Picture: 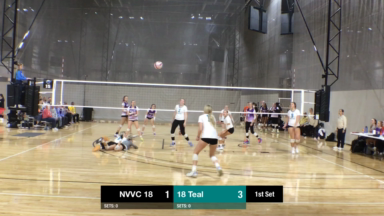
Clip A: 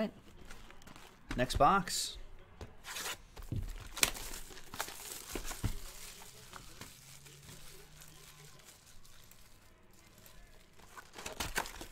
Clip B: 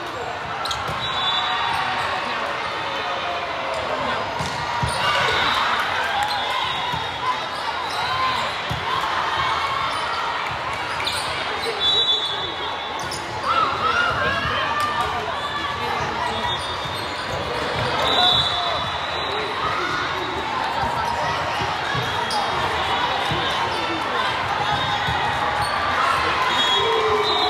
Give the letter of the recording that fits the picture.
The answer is B